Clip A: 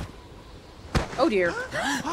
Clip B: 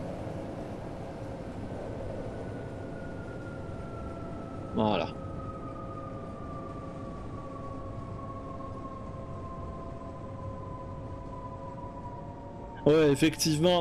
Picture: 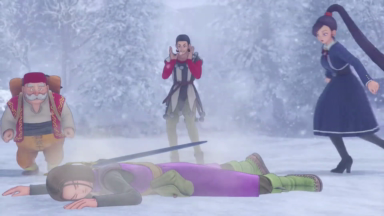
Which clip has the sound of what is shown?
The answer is A